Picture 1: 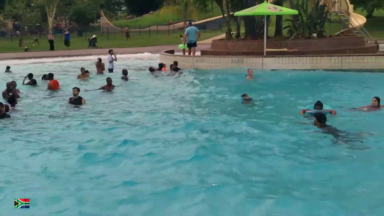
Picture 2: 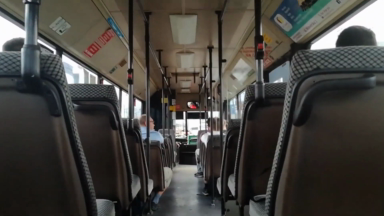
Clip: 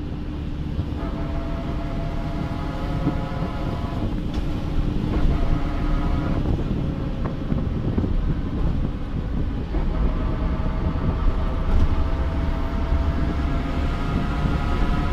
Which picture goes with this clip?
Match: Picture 2